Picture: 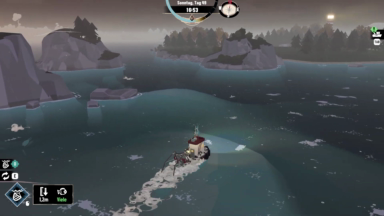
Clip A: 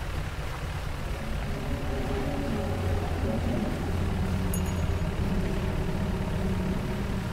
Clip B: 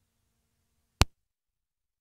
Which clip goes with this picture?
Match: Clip A